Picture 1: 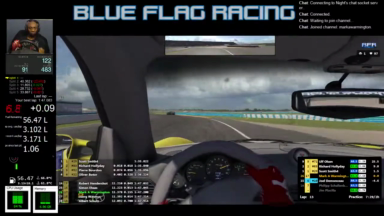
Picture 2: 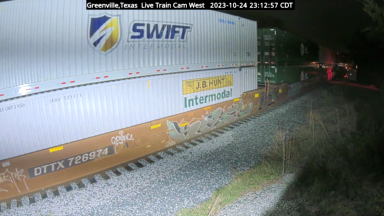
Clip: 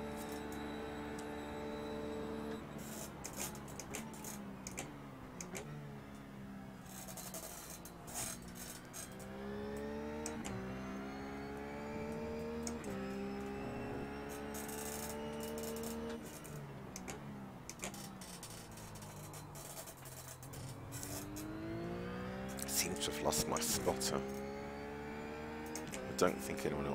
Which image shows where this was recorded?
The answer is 1